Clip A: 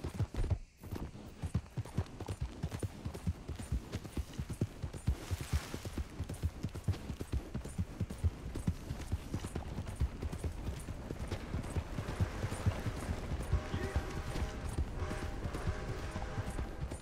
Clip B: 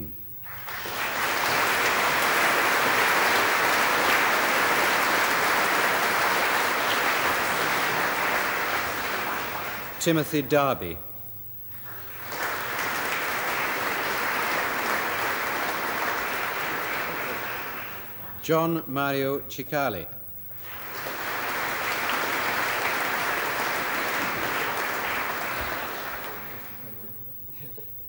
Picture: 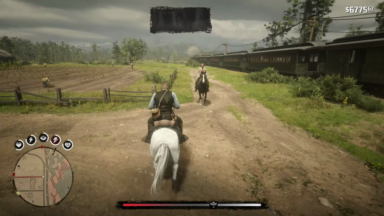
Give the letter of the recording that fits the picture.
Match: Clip A